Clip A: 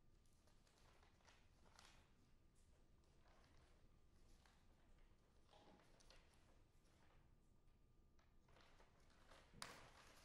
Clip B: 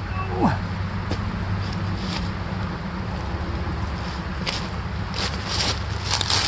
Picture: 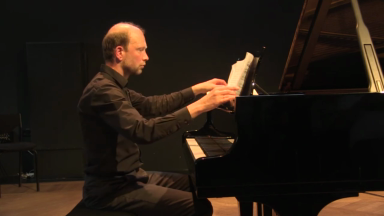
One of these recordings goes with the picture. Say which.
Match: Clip A